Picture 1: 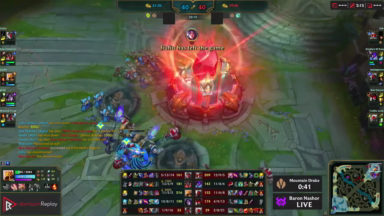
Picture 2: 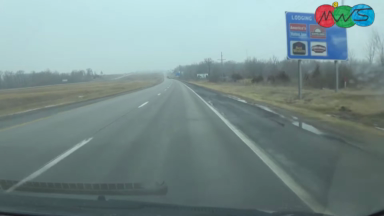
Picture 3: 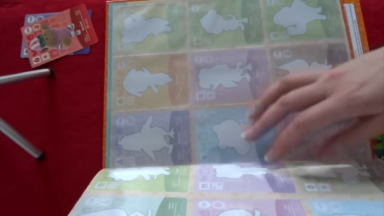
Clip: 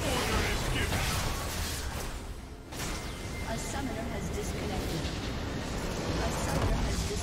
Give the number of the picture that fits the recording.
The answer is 1